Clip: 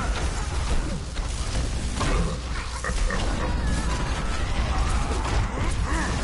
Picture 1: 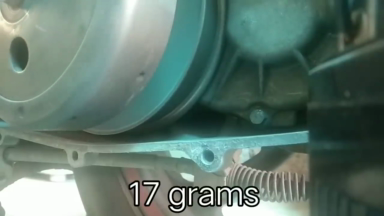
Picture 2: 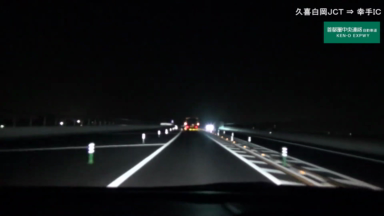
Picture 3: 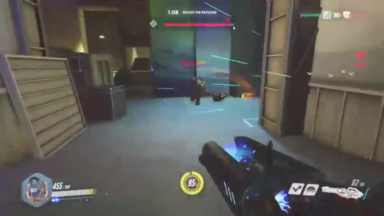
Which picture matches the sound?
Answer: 3